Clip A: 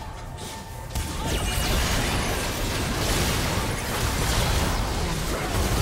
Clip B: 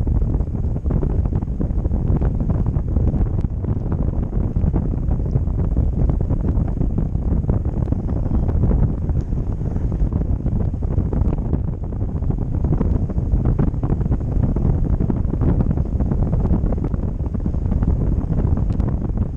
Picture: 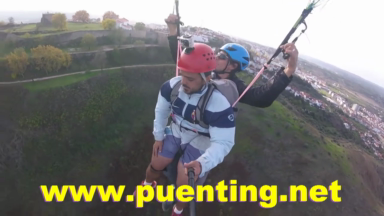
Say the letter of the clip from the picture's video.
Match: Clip B